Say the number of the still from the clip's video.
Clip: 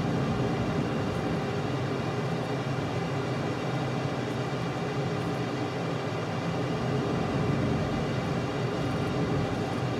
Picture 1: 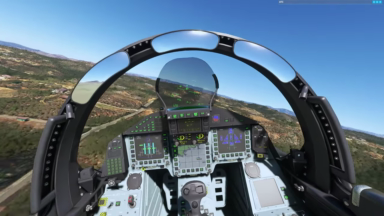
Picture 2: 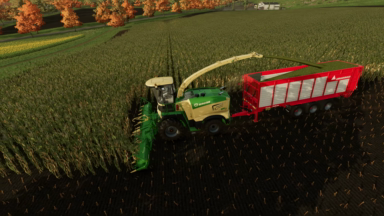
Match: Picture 1